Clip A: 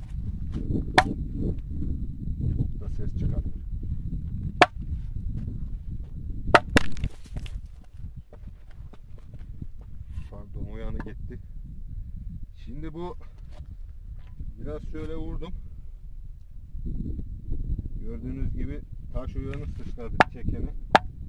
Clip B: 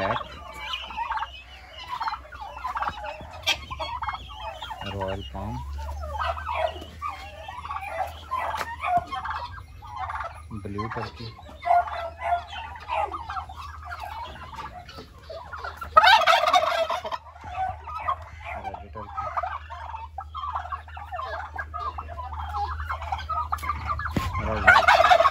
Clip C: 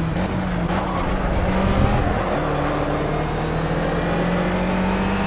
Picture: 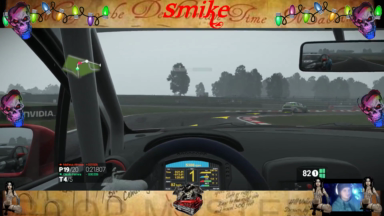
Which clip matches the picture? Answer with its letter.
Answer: C